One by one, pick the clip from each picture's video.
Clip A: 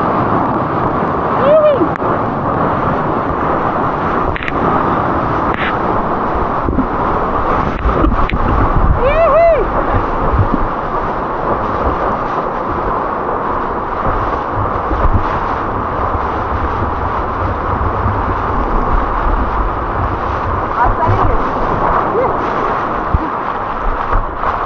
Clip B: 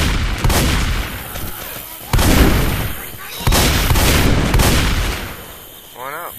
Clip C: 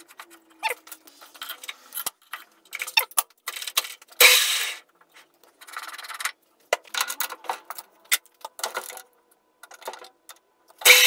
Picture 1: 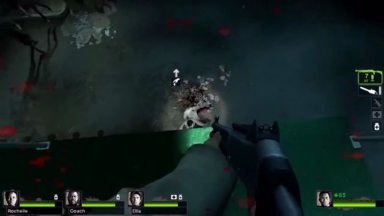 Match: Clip B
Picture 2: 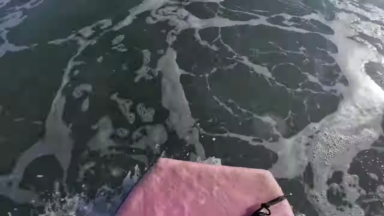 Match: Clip A